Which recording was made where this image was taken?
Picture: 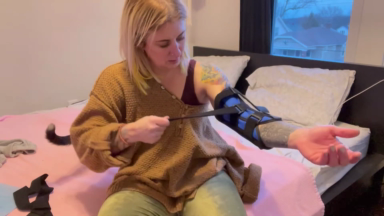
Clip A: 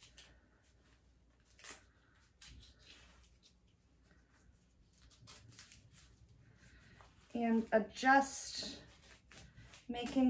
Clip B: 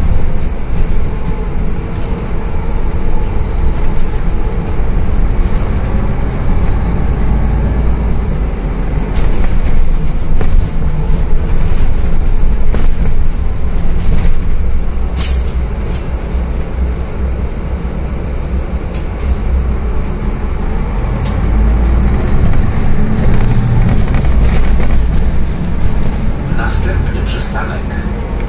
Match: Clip A